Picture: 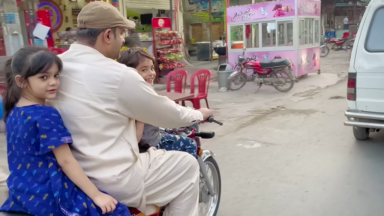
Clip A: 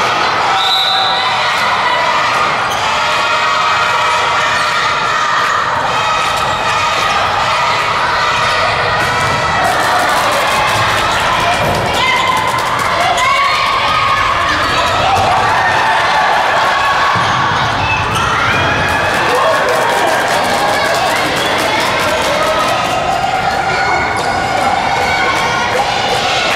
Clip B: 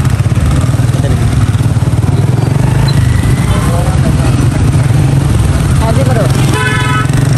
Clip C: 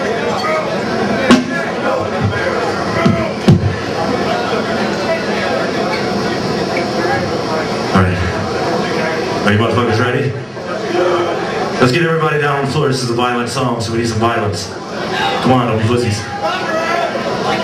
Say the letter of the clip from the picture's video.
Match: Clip B